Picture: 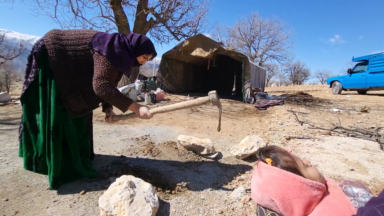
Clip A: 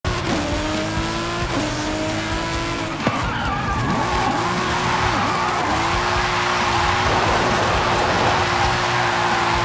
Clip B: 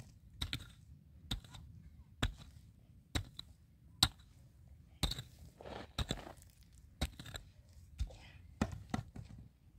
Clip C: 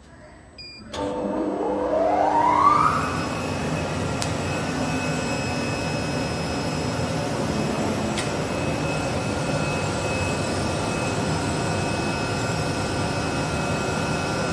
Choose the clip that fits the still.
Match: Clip B